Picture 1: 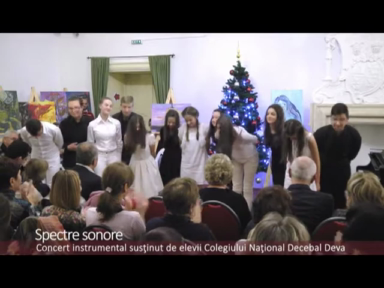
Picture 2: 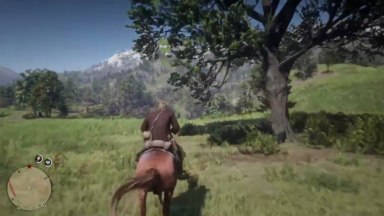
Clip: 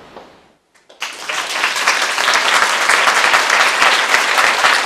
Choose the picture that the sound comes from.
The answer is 1